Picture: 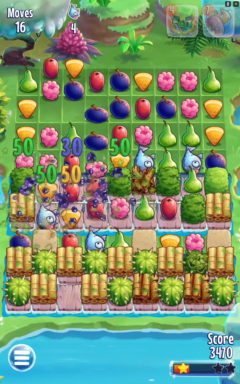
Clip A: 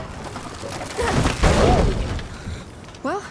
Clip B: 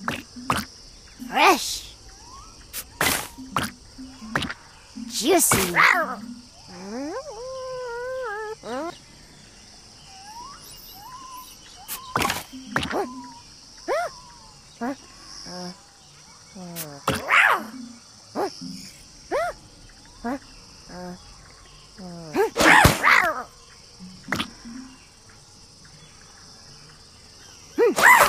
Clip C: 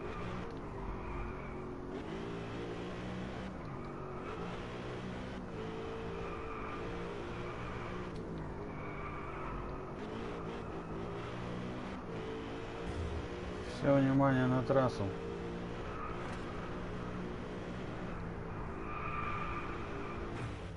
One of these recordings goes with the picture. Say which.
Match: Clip B